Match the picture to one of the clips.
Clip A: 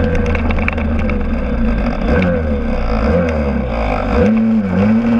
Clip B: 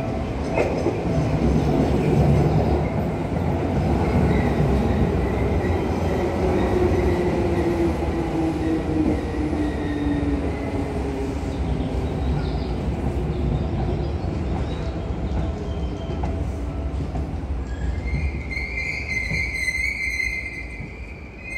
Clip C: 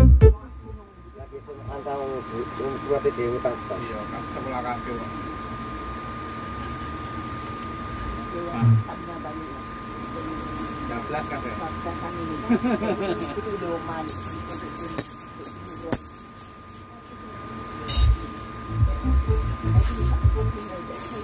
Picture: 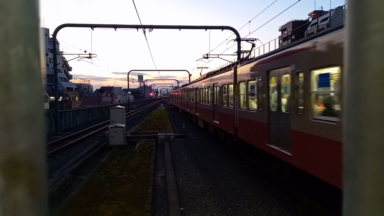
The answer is B